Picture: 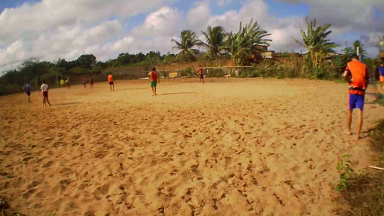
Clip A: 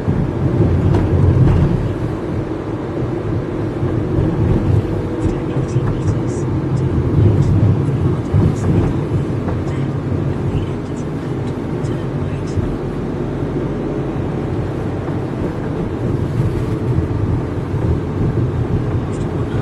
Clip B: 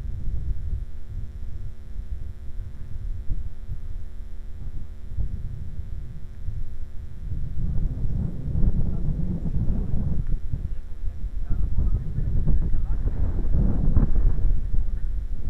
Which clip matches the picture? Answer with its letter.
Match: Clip B